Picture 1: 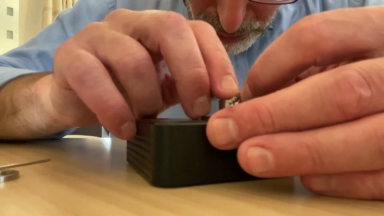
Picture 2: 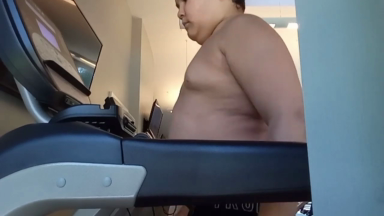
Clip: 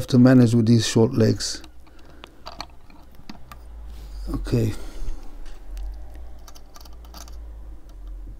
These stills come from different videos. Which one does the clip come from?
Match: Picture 1